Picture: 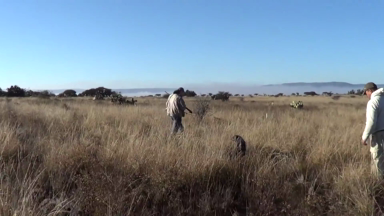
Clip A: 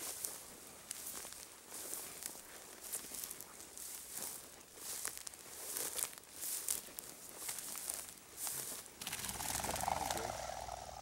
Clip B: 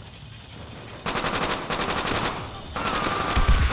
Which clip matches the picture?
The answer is A